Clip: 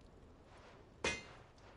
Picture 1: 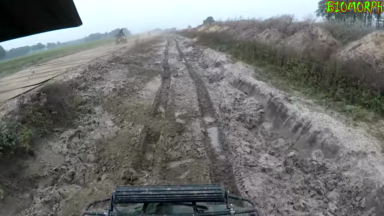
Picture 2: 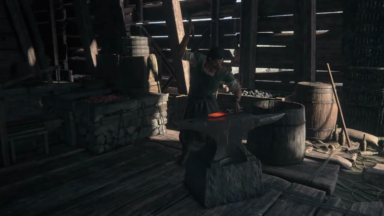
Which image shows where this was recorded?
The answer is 2